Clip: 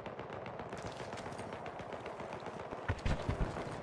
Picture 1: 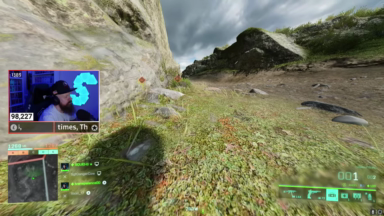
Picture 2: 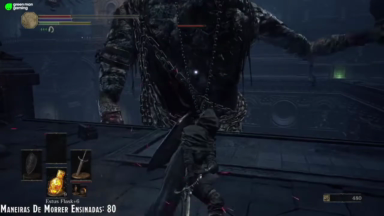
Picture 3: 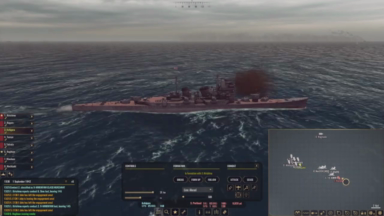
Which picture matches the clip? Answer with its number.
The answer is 1